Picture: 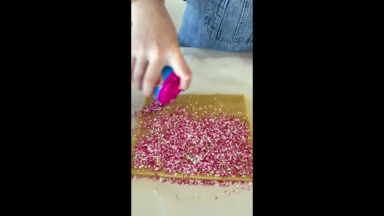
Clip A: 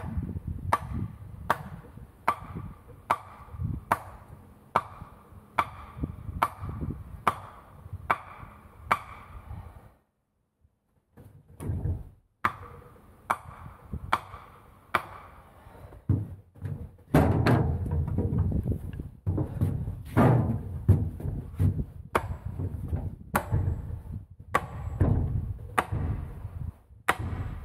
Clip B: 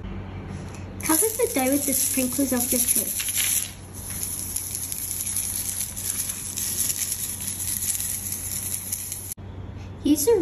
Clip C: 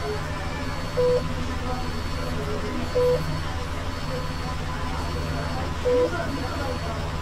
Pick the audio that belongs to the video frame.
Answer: B